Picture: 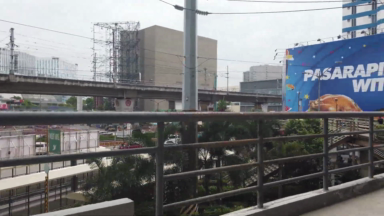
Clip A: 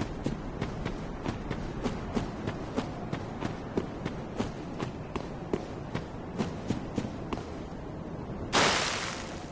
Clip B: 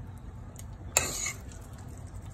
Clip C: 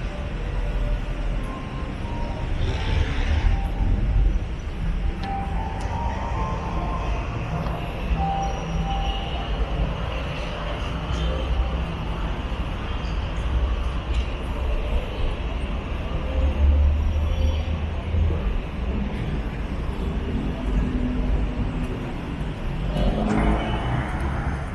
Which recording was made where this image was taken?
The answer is C